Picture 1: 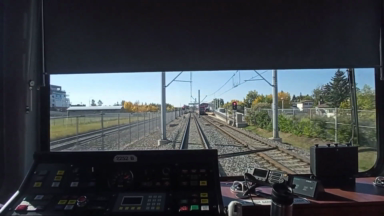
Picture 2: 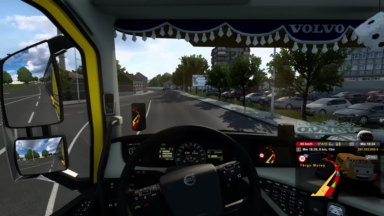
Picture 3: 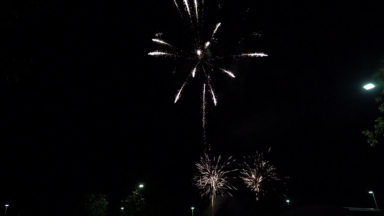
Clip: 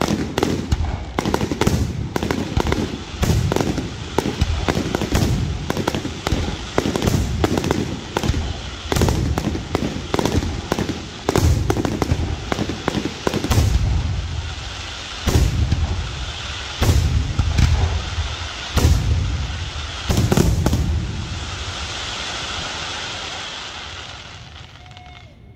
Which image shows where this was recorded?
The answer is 3